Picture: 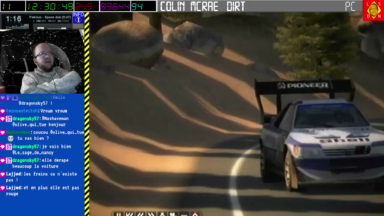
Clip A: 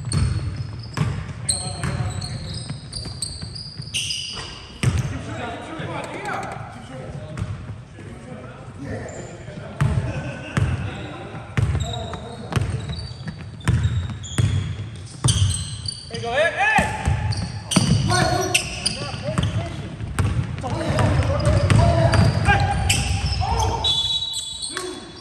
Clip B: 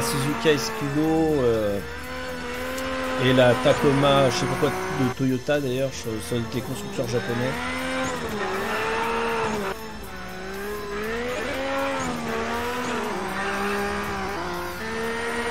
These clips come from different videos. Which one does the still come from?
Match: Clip B